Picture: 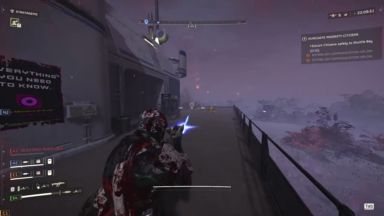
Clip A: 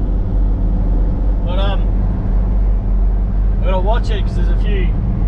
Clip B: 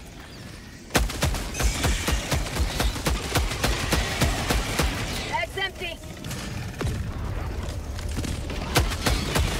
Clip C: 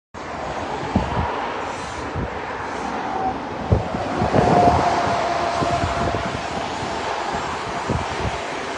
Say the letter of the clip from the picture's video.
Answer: B